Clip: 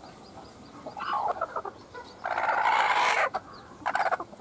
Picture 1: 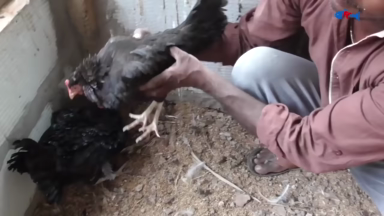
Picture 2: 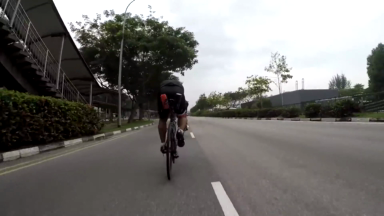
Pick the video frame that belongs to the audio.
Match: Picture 1